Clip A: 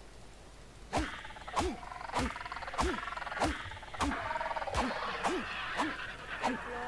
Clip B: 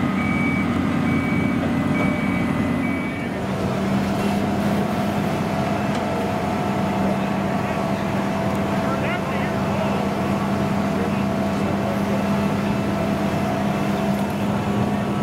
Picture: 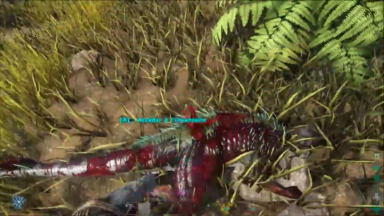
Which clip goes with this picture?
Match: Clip A